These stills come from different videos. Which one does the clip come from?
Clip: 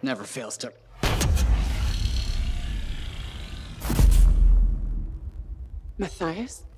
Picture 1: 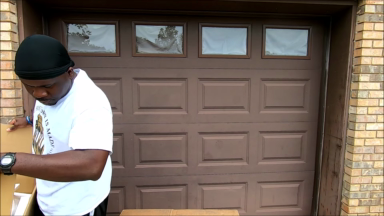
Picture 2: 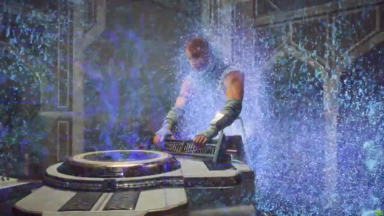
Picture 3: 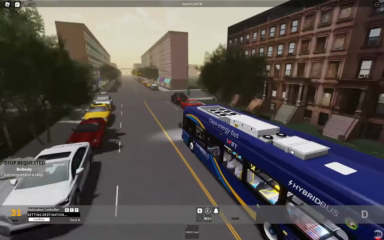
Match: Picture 2